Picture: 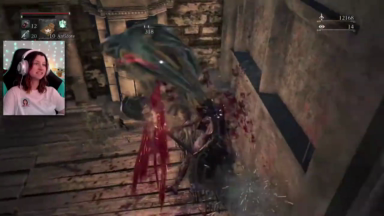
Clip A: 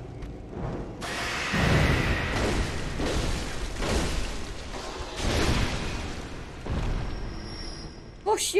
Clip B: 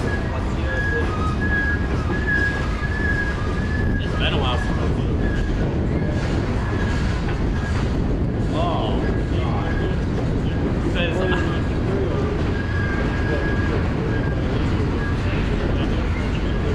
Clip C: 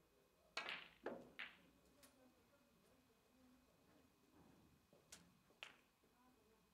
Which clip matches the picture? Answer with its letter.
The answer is A